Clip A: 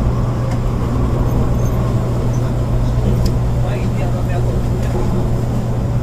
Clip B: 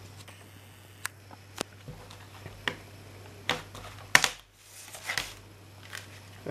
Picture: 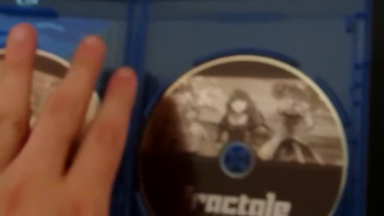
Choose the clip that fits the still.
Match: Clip B